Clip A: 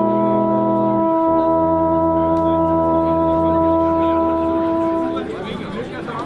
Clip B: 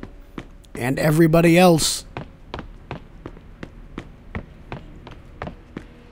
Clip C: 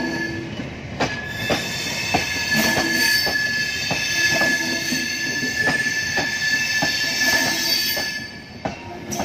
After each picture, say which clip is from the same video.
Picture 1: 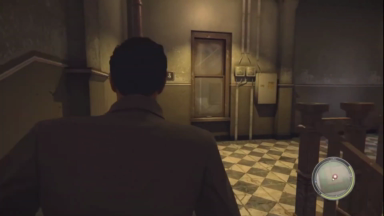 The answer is B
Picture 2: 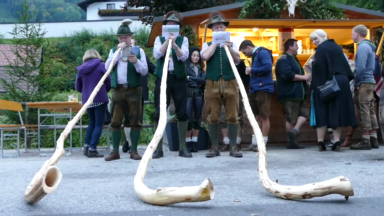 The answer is A